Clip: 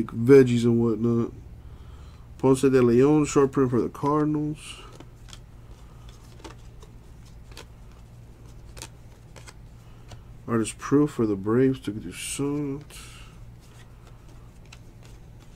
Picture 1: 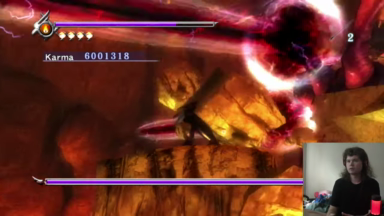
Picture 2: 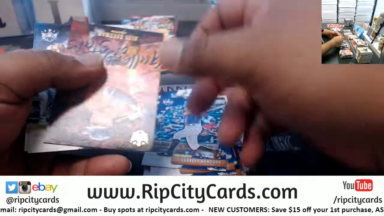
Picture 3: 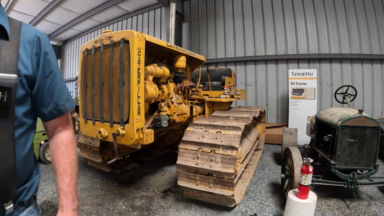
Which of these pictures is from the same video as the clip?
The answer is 2